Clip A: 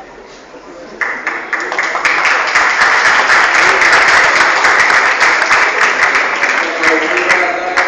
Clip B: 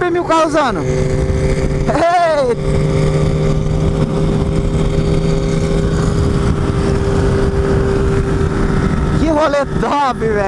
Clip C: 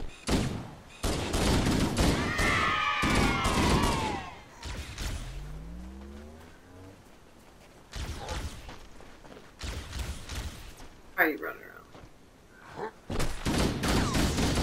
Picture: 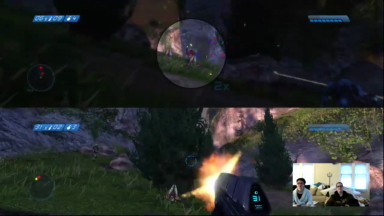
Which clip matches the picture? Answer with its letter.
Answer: C